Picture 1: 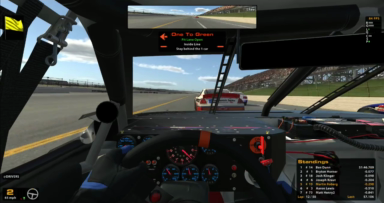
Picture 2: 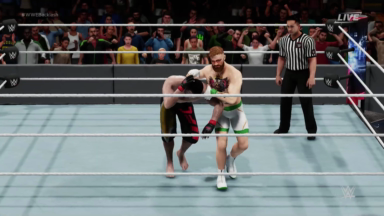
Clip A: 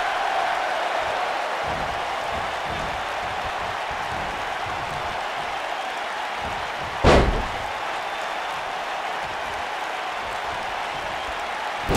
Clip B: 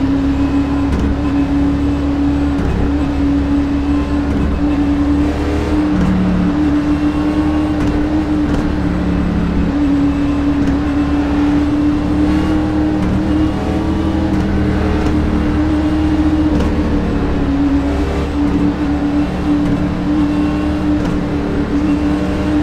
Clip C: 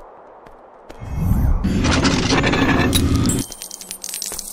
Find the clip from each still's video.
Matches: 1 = B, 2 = A